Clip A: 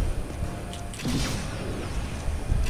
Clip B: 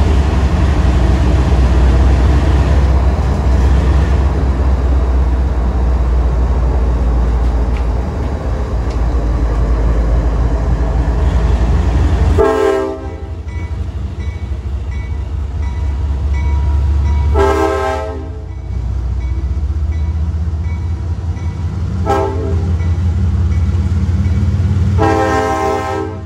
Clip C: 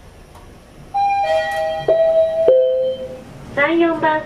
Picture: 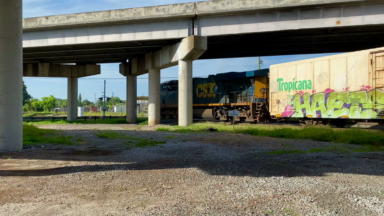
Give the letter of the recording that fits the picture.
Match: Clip B